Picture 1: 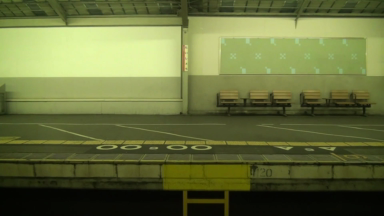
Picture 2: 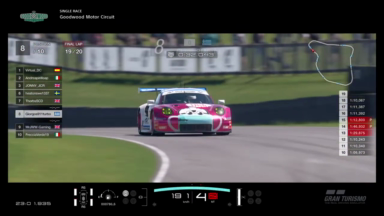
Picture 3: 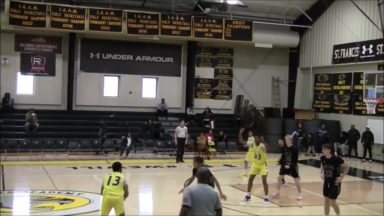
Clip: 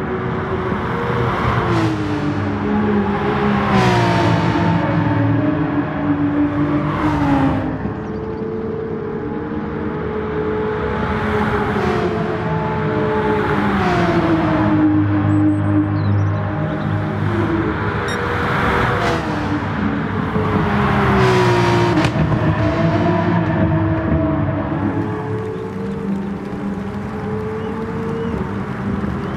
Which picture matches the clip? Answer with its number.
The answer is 2